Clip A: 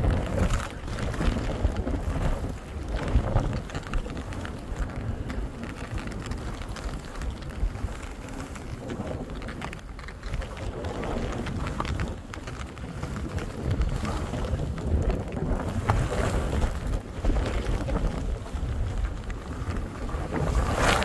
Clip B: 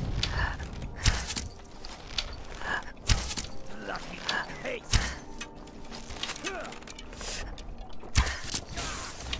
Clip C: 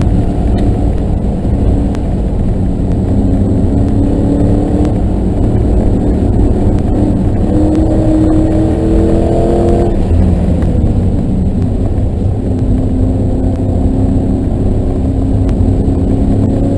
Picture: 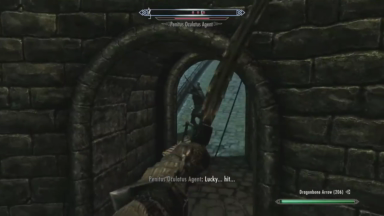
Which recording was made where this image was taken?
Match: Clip B